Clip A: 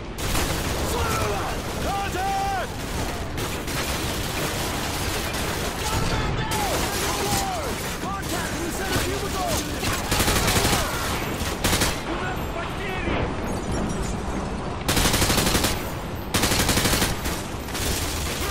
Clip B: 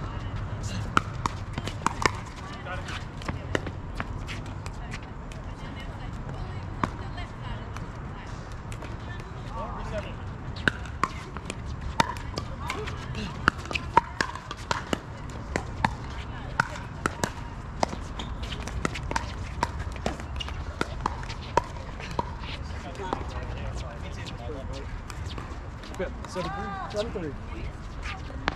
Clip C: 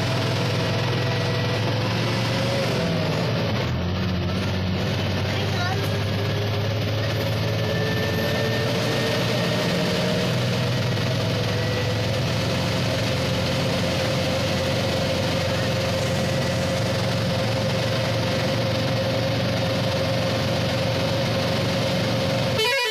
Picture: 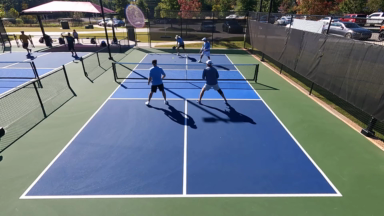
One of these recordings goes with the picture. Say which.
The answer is B